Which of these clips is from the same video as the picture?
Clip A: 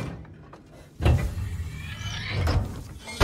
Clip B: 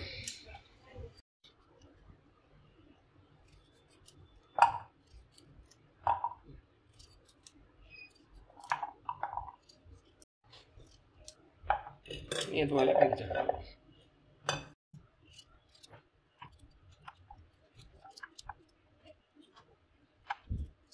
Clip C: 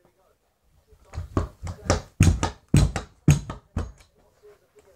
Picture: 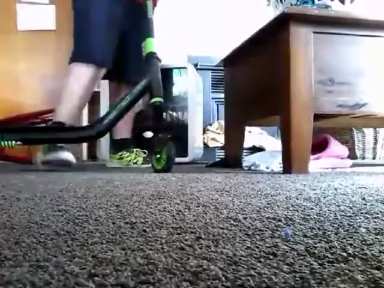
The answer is C